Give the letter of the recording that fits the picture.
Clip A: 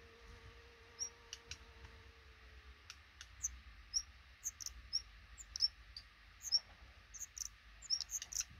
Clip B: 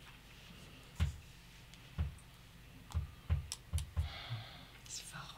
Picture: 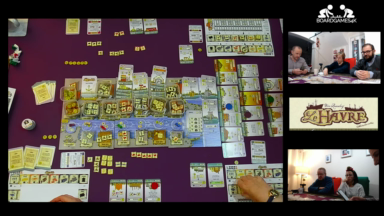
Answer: B